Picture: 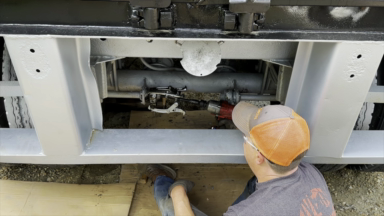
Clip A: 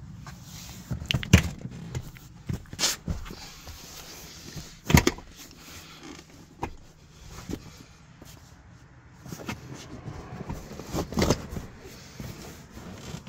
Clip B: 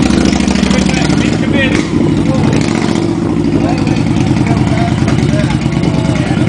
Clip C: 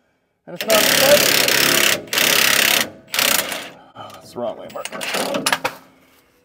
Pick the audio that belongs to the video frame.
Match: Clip C